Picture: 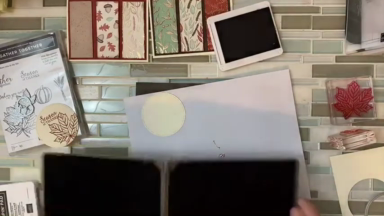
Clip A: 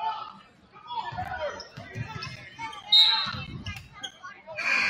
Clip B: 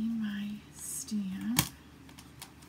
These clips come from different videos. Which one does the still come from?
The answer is B